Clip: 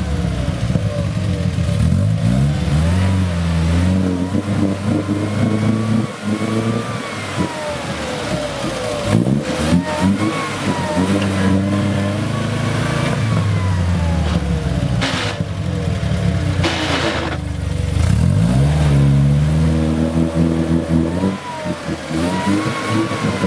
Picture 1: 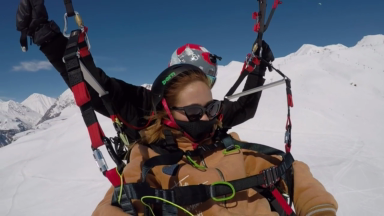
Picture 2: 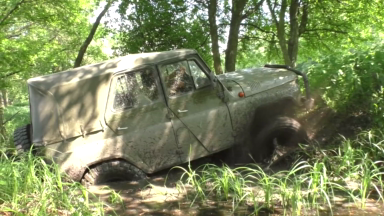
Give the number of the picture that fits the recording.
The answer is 2